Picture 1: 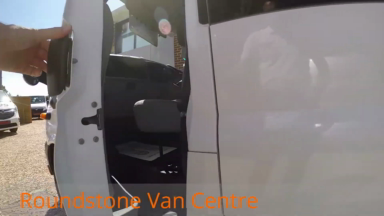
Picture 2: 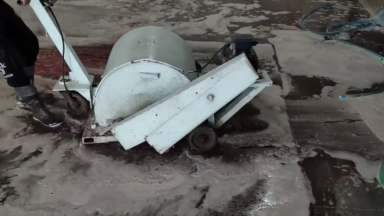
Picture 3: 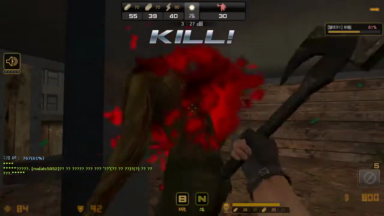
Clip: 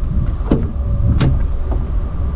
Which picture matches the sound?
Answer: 1